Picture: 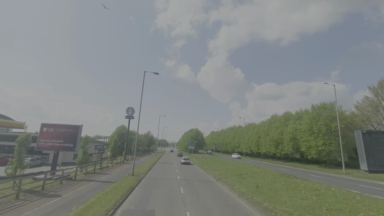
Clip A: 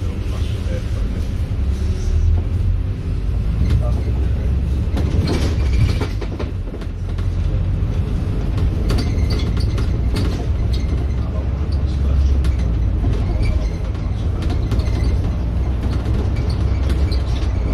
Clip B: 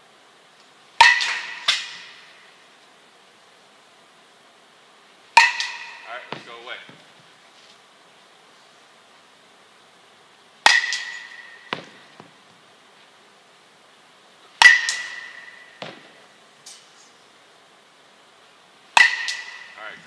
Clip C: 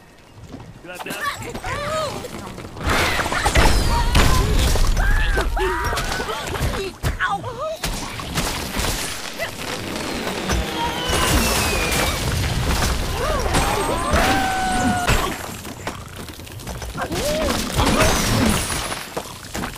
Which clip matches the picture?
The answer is A